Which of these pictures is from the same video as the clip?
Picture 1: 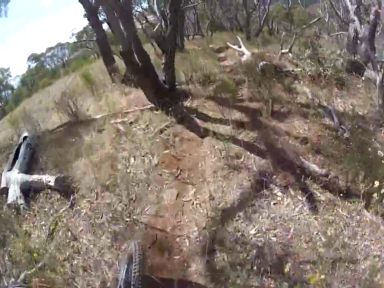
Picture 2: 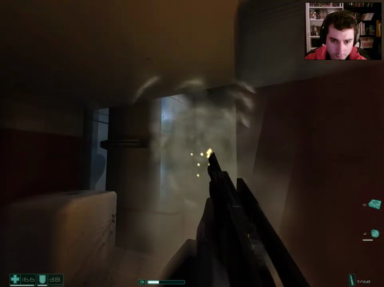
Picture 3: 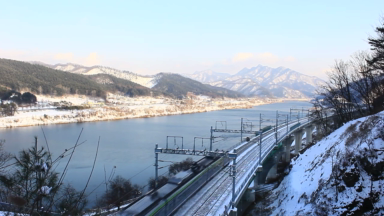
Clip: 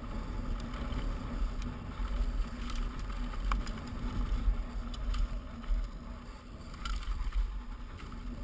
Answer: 1